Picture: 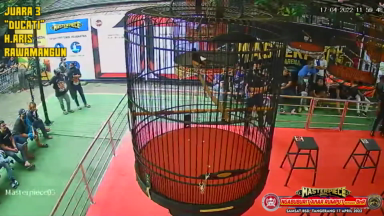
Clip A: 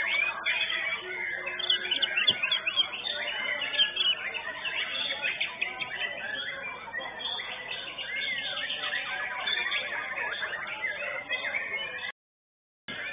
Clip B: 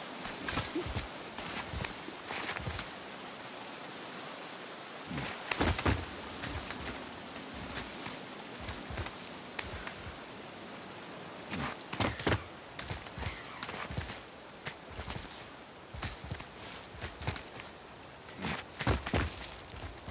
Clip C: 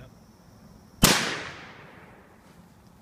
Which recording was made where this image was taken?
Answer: A